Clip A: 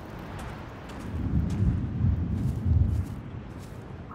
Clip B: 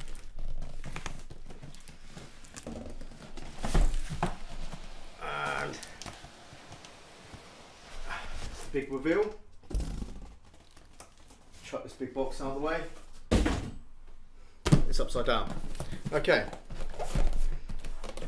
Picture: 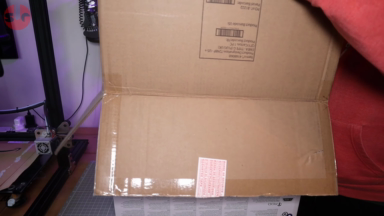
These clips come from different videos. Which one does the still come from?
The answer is B